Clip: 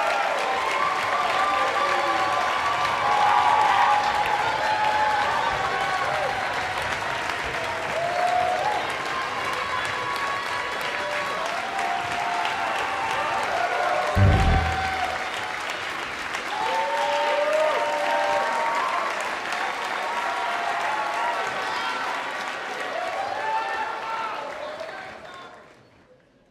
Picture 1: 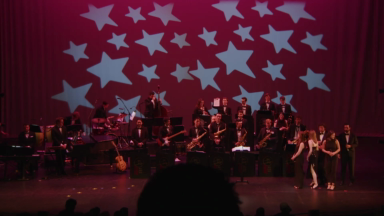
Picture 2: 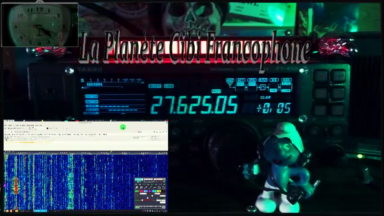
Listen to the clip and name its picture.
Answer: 1